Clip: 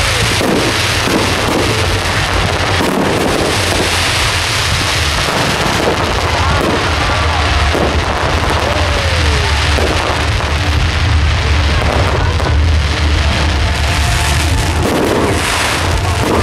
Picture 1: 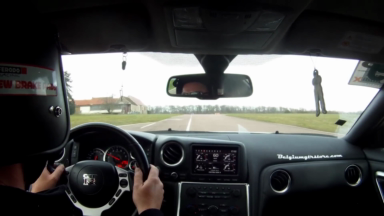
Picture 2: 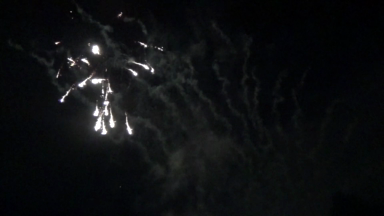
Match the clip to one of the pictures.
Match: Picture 2